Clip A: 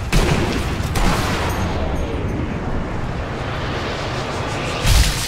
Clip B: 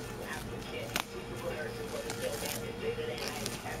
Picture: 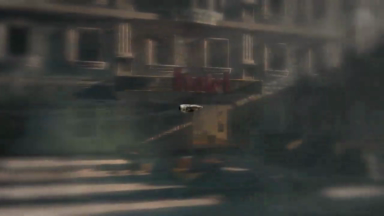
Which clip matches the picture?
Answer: A